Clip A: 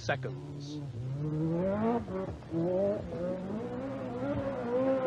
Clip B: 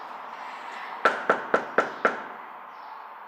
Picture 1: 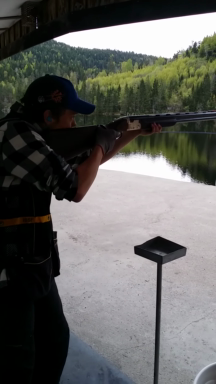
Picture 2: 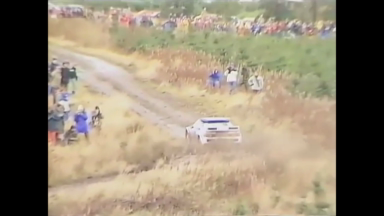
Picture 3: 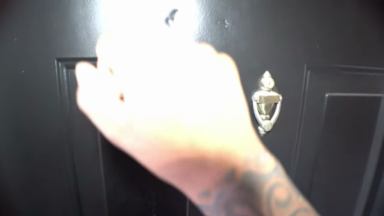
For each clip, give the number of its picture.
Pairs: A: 2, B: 3